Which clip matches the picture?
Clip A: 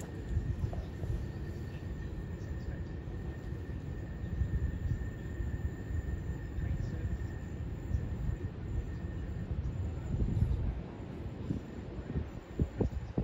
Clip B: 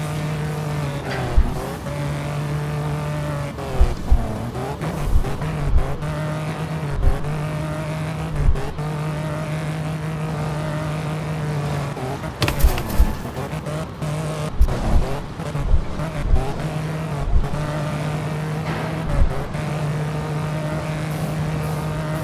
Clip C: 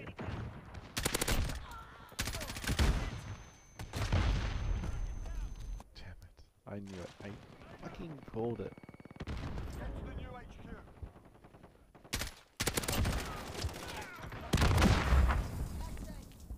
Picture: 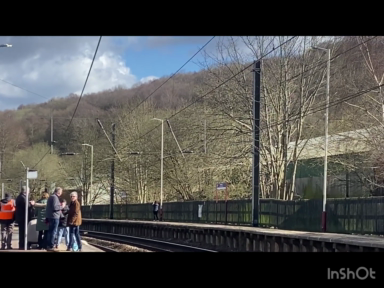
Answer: A